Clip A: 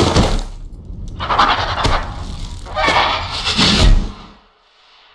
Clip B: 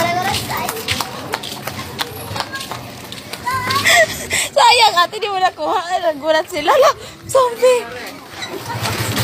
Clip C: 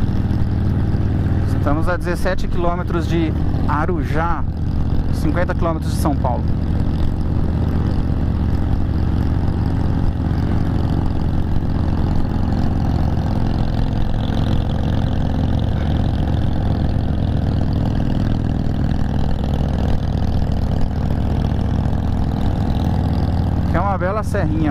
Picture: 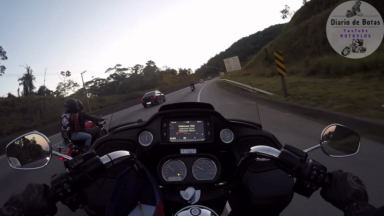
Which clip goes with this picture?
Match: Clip C